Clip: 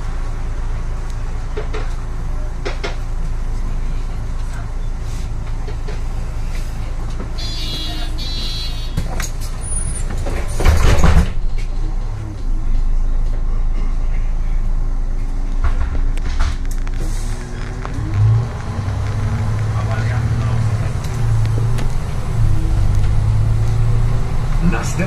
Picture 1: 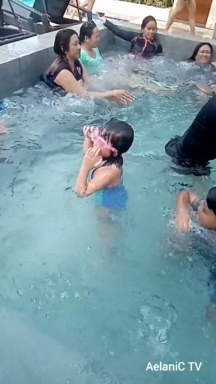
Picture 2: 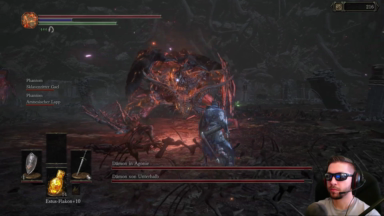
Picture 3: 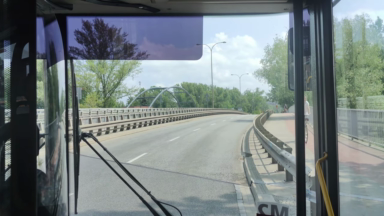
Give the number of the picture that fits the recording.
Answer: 3